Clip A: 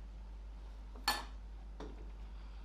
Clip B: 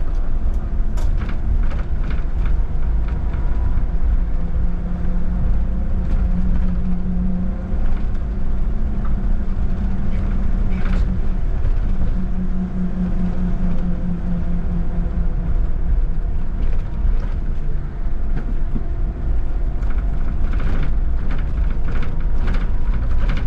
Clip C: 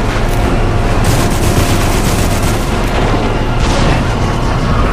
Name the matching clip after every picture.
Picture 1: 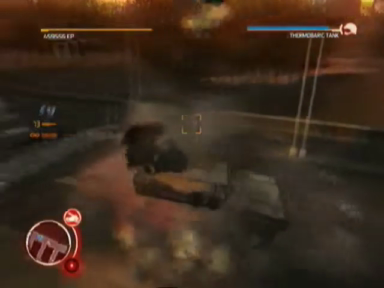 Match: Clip C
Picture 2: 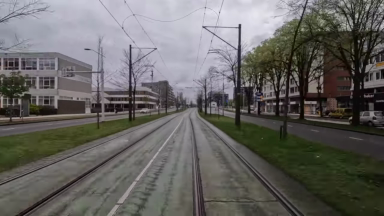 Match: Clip B